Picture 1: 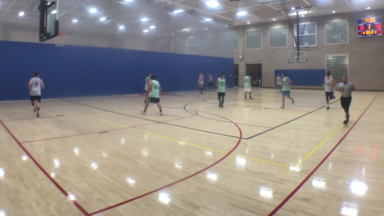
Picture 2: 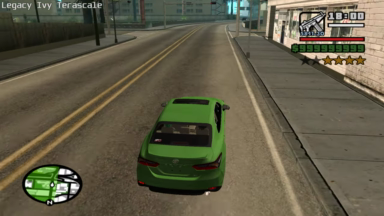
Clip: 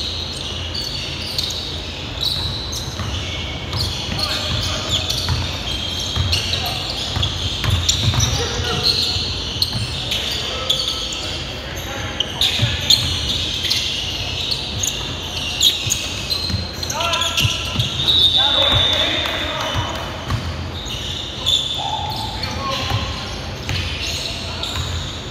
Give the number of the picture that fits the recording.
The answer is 1